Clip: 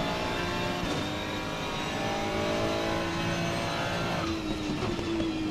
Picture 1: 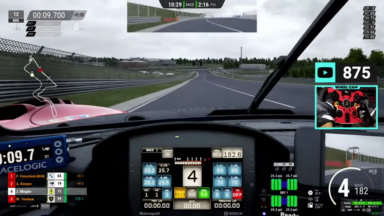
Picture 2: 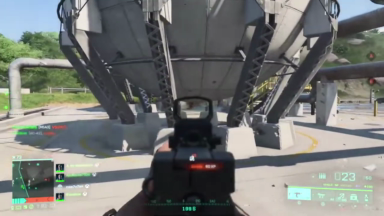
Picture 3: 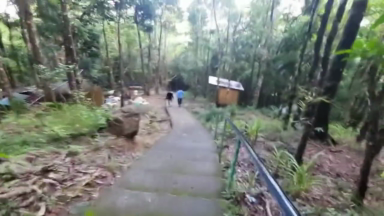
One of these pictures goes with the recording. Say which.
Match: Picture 1